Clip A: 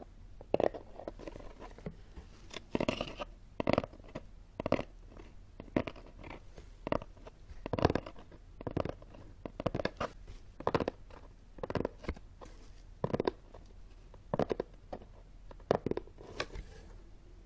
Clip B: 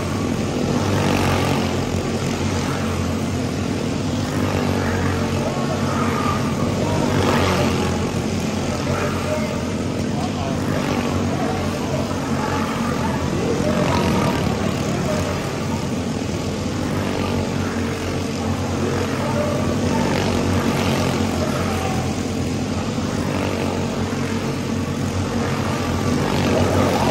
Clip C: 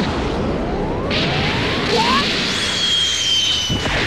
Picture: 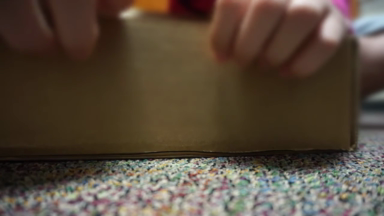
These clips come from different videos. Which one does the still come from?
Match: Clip A